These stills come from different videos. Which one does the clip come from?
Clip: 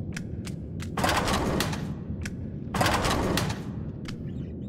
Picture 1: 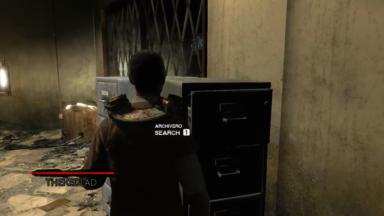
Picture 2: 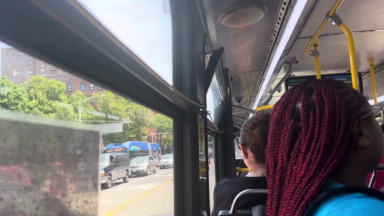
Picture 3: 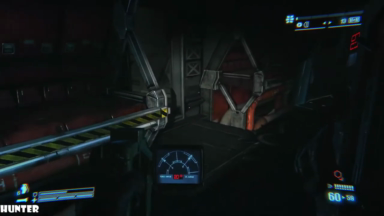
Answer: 1